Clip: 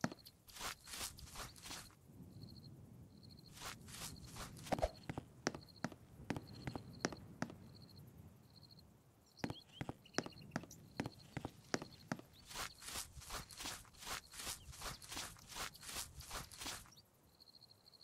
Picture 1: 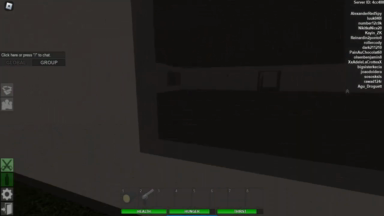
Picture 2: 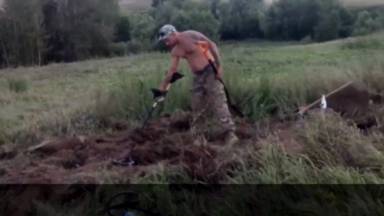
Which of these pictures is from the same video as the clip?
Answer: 1